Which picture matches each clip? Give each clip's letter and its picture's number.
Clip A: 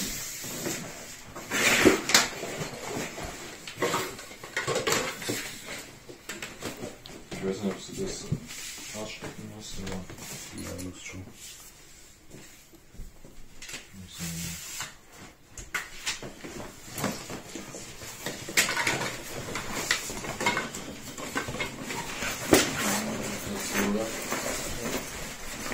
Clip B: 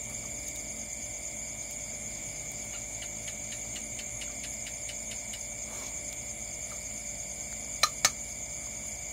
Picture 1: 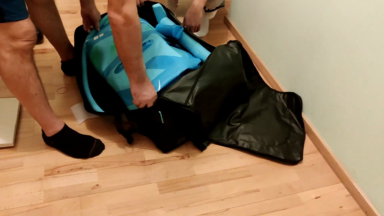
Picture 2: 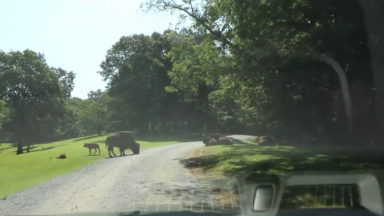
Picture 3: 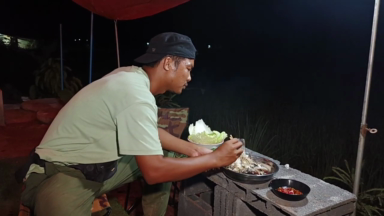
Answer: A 1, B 3